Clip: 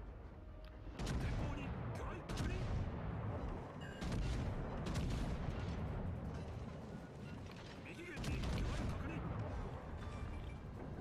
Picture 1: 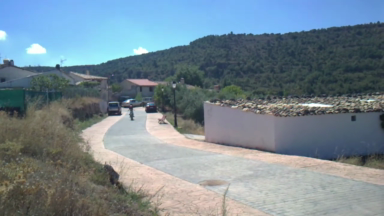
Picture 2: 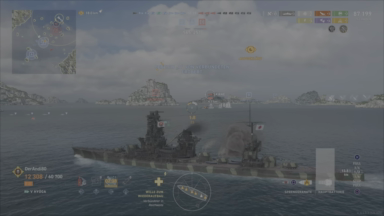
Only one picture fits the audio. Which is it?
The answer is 2